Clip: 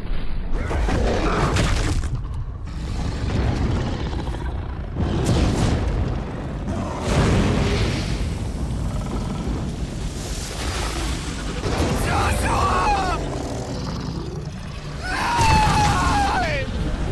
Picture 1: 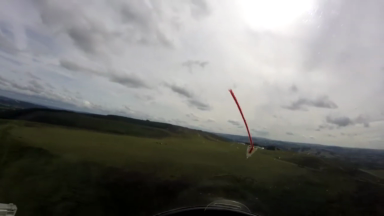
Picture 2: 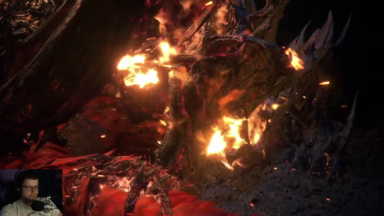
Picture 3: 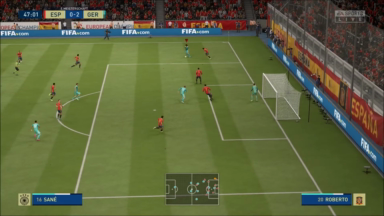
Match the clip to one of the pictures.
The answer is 2